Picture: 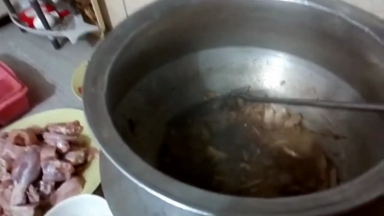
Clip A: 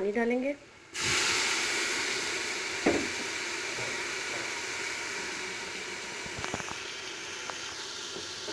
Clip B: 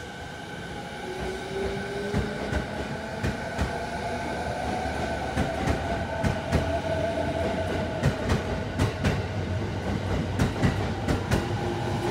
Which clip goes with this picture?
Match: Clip A